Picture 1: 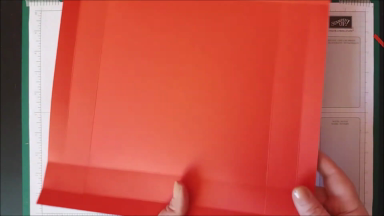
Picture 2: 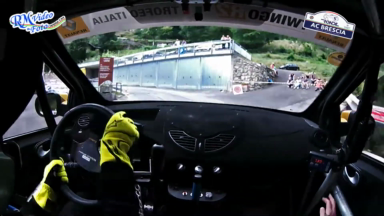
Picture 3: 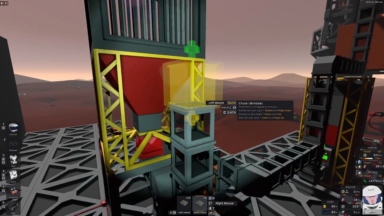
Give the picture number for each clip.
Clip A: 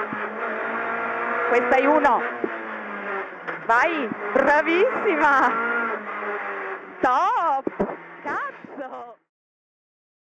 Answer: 2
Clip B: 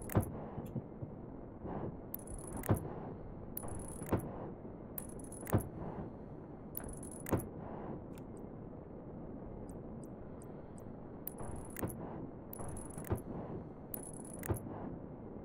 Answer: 3